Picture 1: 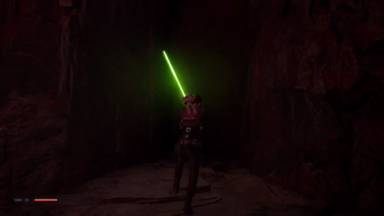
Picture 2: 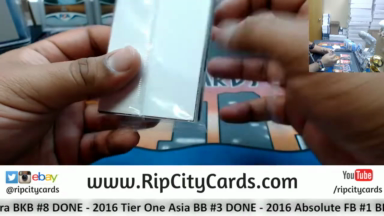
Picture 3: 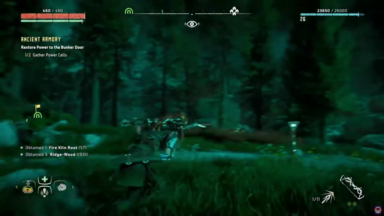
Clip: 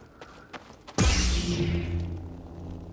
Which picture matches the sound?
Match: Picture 1